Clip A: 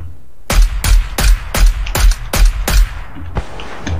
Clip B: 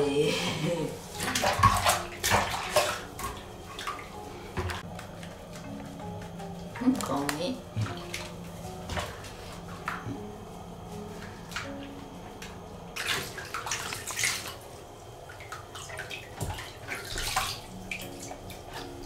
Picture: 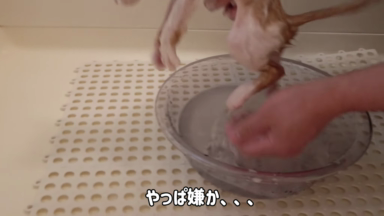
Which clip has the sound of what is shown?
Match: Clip B